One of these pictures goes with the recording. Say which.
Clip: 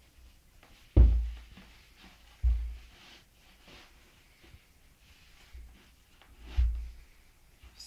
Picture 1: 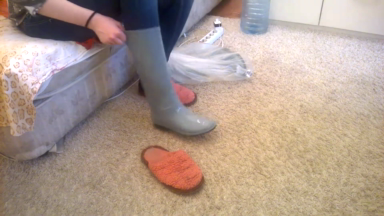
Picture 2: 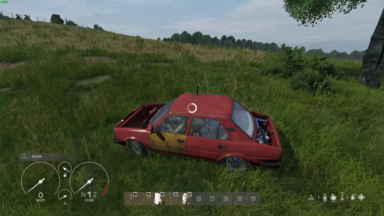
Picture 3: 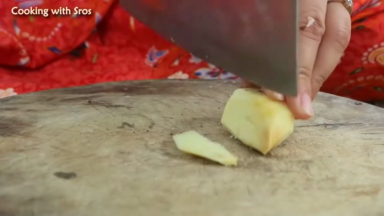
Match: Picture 1